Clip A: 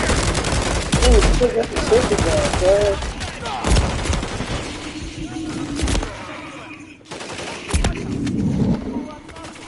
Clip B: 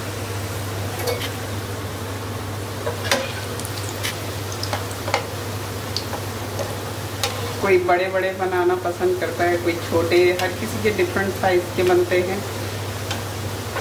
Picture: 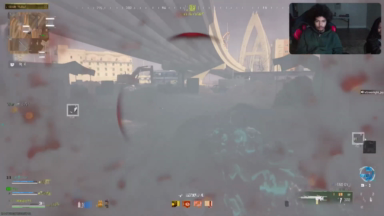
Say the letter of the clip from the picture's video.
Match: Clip A